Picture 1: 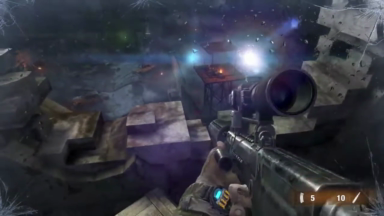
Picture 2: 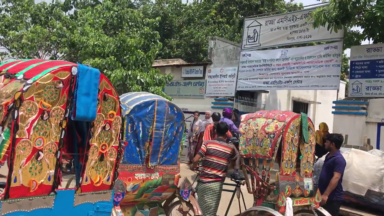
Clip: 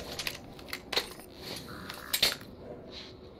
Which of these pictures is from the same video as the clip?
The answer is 1